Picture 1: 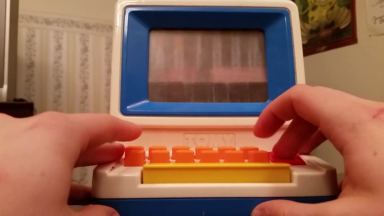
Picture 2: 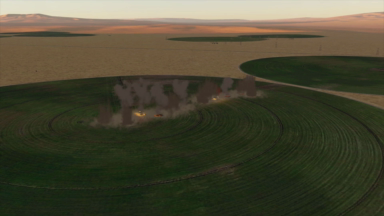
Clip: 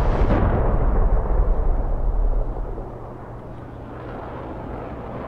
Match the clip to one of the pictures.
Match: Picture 2